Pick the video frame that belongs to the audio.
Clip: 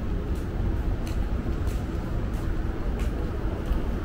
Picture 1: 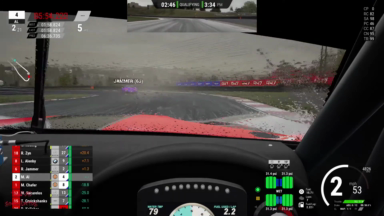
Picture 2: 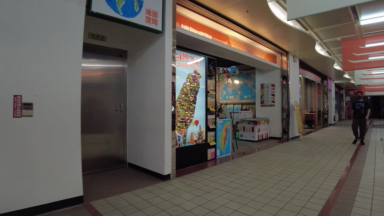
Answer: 2